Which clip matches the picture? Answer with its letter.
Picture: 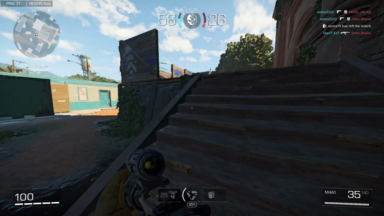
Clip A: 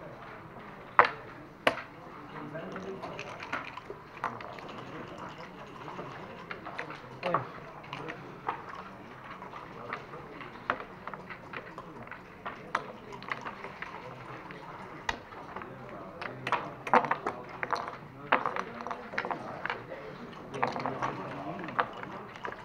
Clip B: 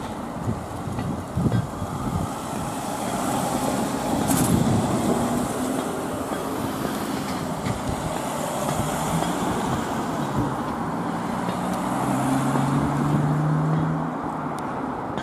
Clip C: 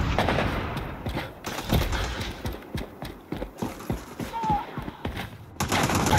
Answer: C